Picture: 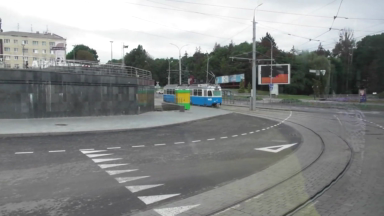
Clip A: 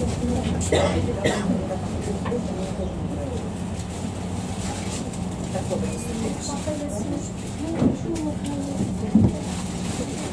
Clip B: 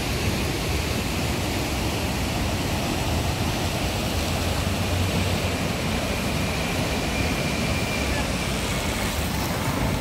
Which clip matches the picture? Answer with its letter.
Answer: A